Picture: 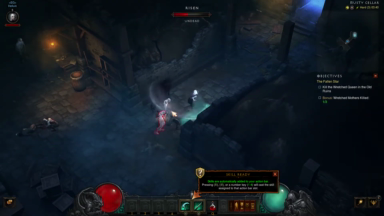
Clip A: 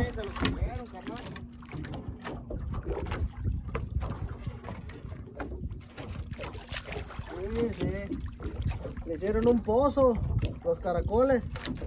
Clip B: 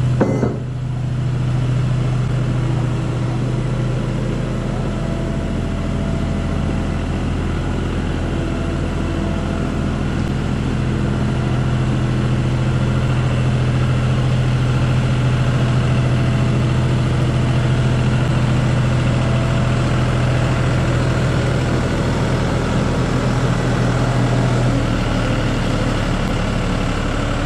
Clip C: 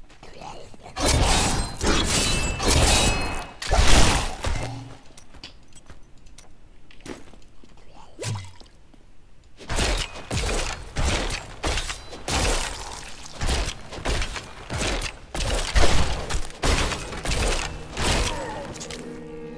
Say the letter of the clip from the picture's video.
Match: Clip C